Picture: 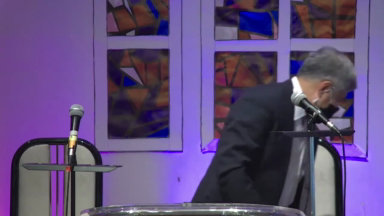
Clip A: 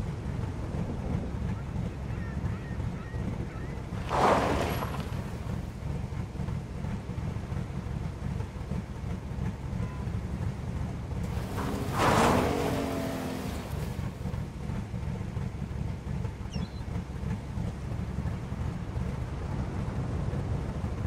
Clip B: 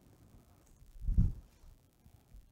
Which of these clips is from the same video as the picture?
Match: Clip B